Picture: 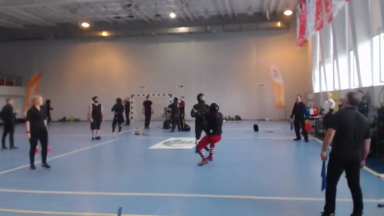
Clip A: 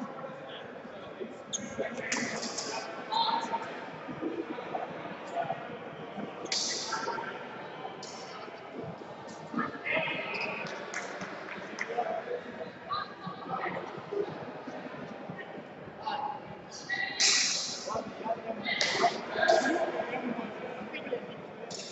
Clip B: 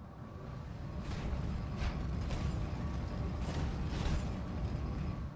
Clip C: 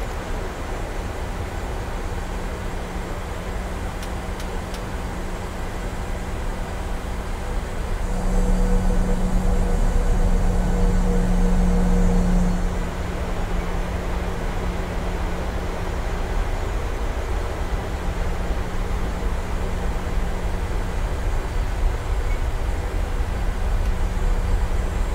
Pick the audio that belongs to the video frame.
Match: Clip A